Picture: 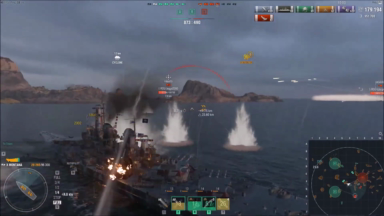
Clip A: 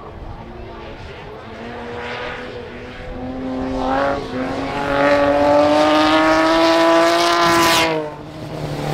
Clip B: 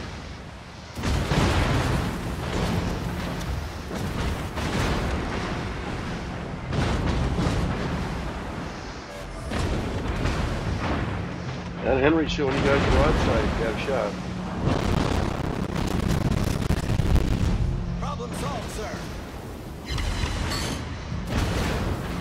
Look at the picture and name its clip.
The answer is B